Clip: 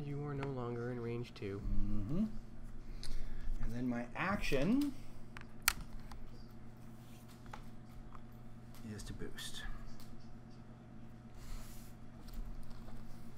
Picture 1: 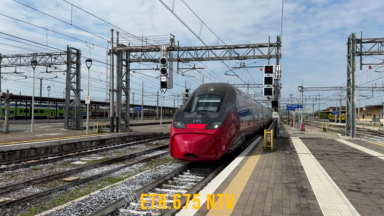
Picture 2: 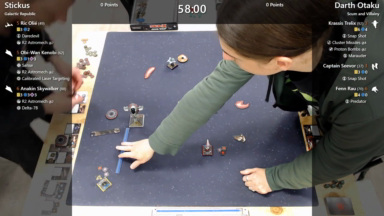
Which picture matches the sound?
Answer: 2